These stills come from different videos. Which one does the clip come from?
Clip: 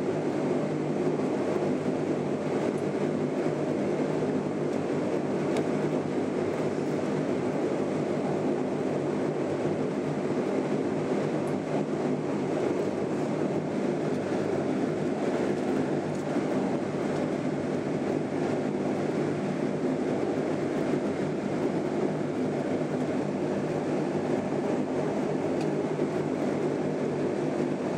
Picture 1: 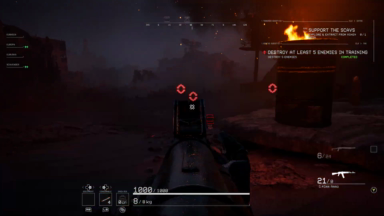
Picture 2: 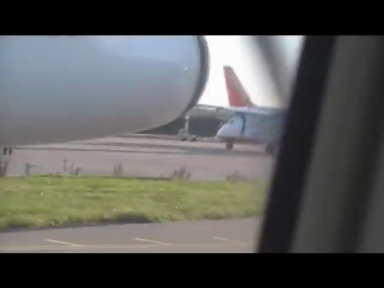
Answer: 2